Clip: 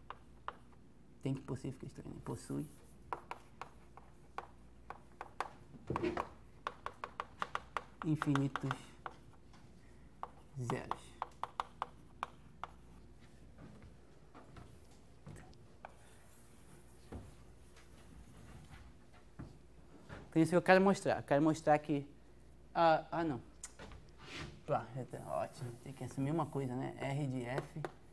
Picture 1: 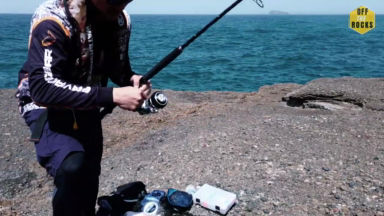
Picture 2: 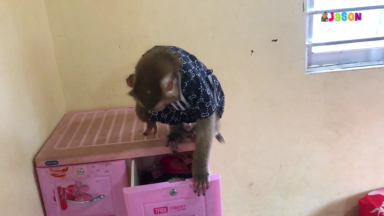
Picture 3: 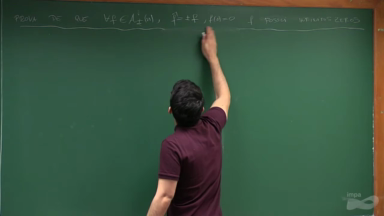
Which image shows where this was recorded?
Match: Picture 3